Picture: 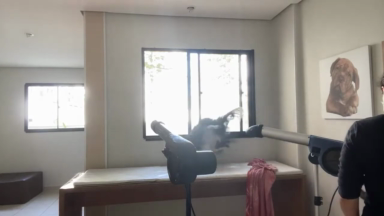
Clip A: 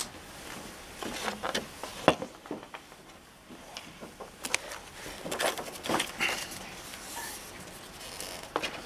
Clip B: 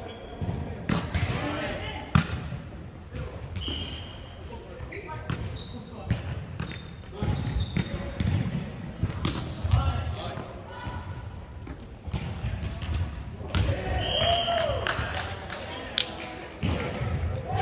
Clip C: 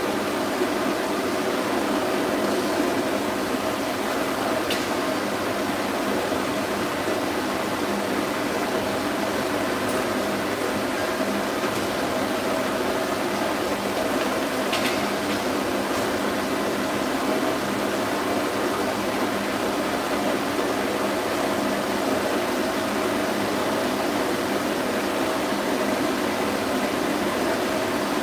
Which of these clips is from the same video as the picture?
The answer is C